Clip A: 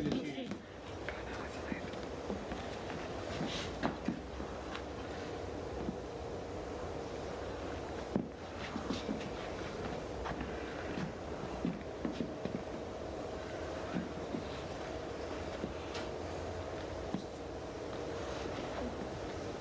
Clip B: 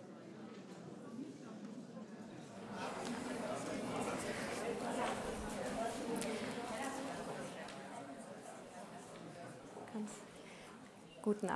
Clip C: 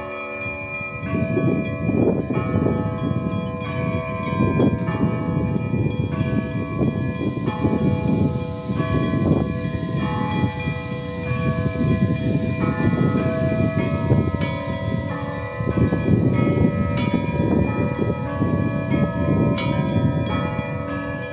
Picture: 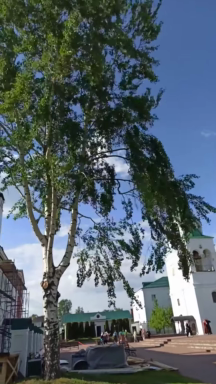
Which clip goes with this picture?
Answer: C